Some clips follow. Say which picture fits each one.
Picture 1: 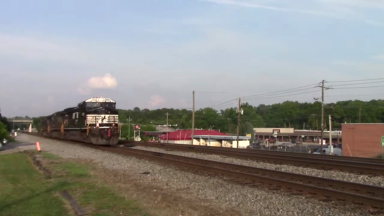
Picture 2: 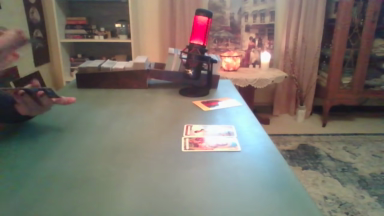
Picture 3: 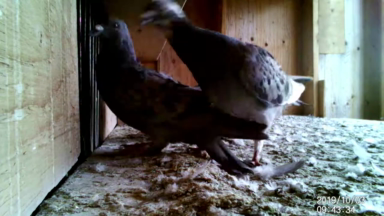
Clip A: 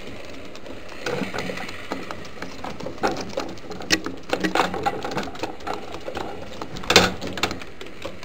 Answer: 3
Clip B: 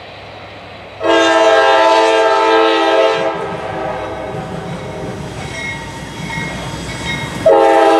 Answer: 1